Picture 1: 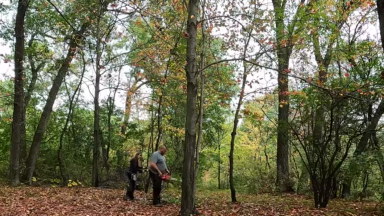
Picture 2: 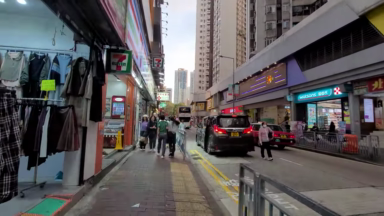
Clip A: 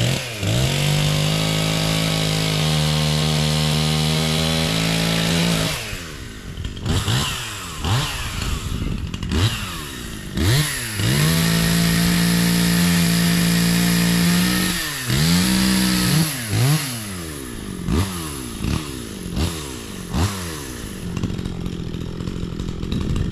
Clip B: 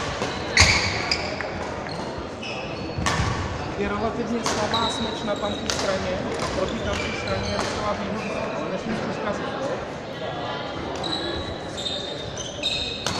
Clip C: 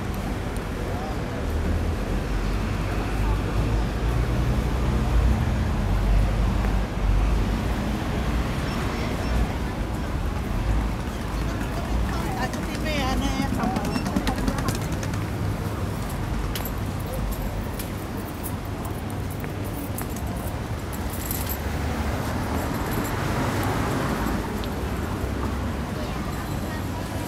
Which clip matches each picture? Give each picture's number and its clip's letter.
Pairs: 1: A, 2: C